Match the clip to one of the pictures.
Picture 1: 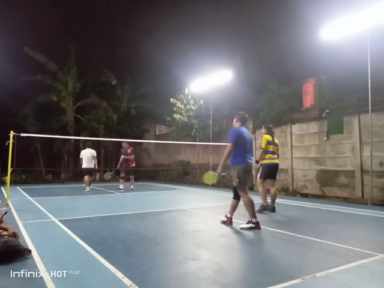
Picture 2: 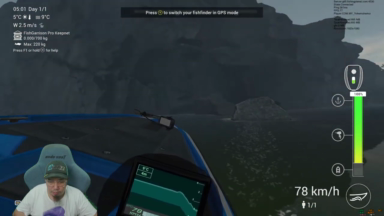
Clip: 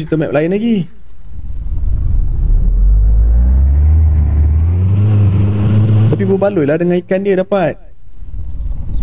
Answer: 2